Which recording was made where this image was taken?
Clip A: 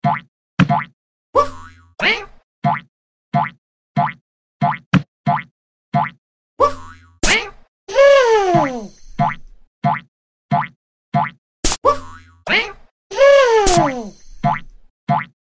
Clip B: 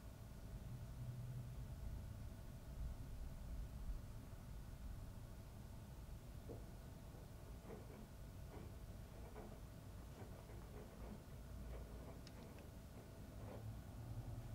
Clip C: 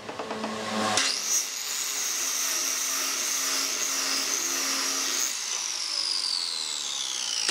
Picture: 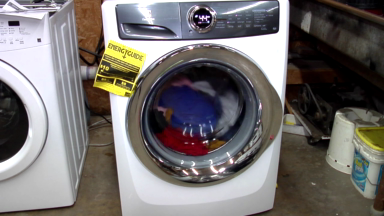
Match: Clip B